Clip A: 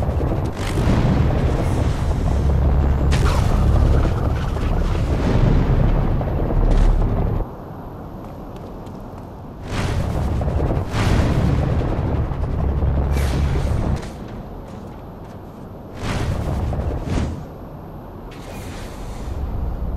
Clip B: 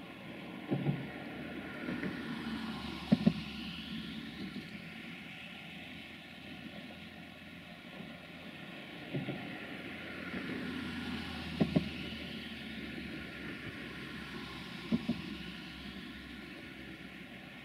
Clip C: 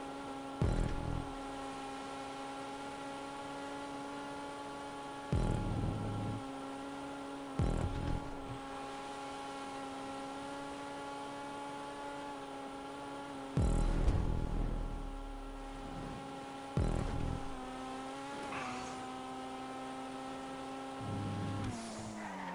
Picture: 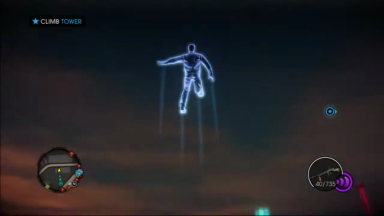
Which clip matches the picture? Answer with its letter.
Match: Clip A